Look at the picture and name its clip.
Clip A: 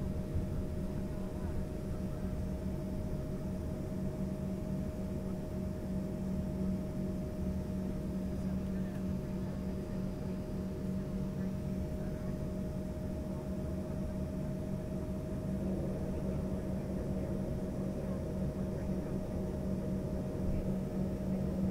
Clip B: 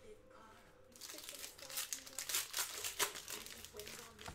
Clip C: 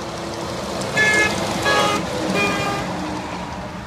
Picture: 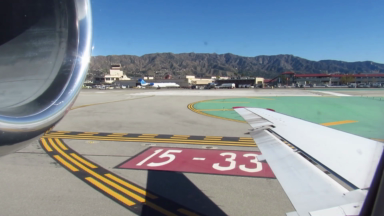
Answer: A